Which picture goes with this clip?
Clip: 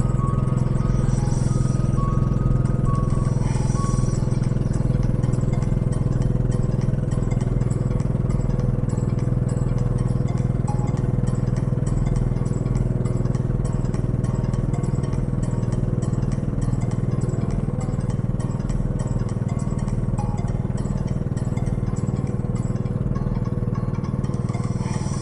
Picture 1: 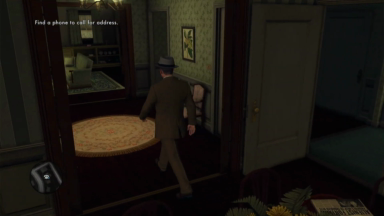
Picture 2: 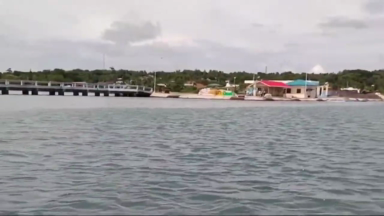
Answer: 2